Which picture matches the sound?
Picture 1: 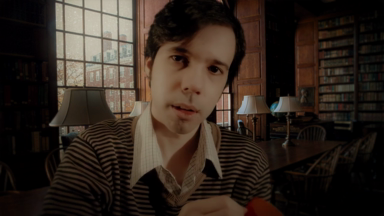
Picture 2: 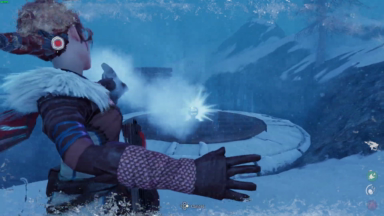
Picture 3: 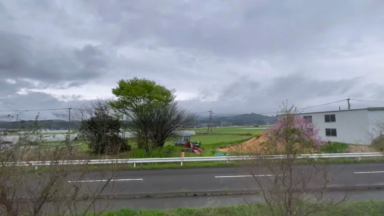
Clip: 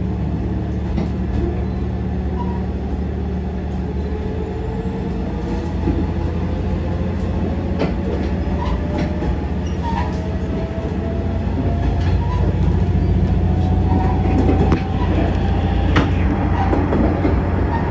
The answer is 3